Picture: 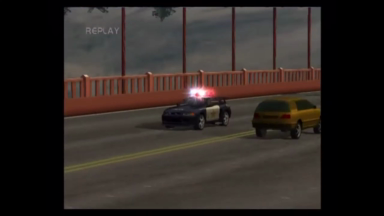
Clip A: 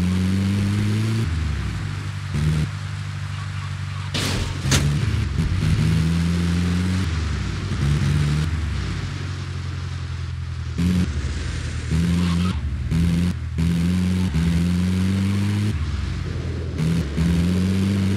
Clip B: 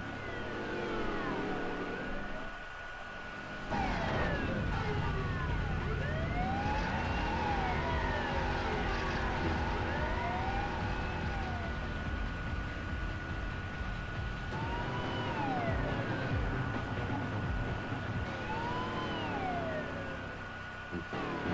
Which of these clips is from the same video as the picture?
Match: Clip B